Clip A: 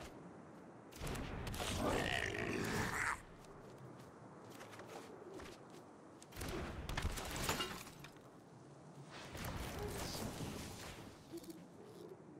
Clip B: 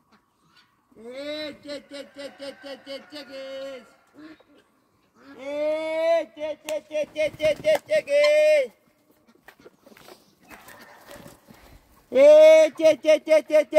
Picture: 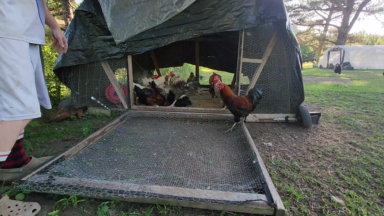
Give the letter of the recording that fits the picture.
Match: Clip B